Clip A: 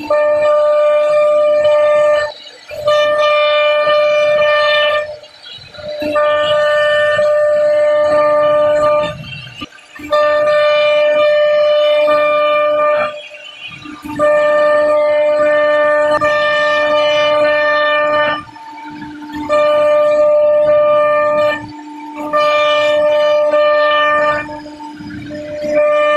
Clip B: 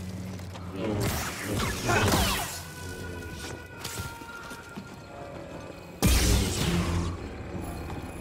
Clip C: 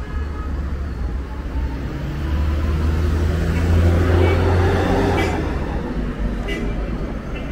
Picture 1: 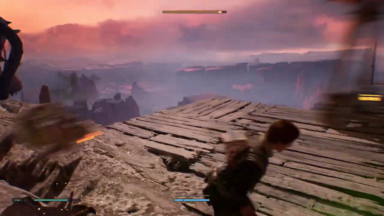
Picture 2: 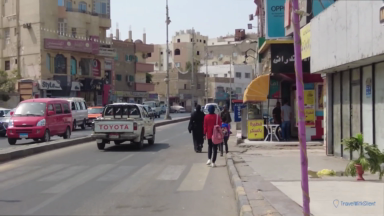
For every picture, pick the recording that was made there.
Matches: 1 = B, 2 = C